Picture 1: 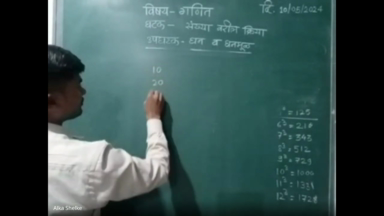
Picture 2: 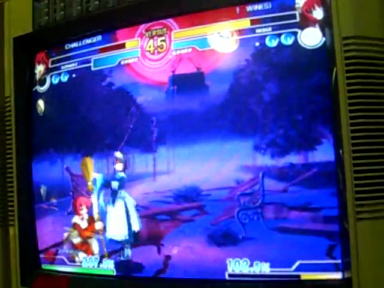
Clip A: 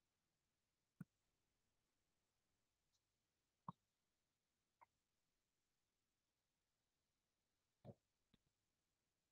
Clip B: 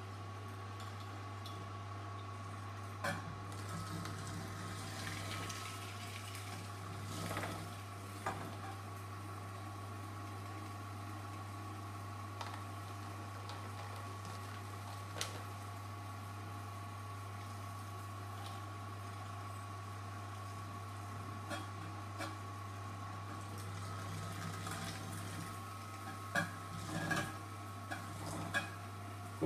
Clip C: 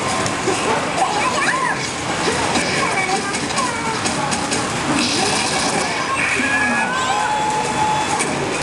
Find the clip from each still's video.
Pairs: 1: A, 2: C